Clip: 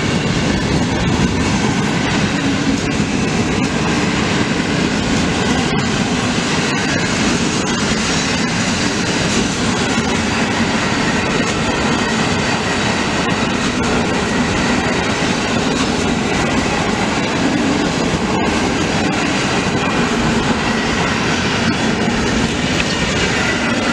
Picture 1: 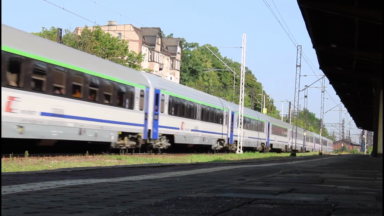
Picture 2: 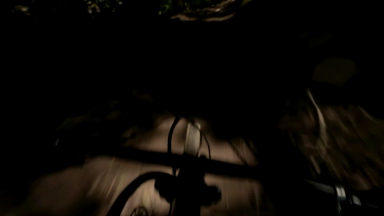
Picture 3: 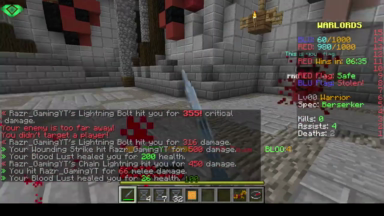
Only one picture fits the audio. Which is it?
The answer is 1